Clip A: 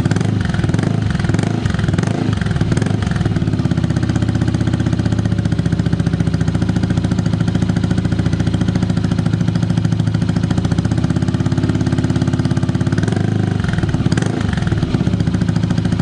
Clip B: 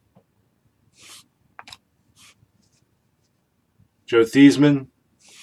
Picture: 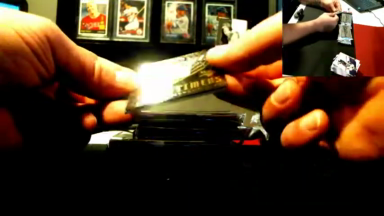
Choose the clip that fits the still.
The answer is B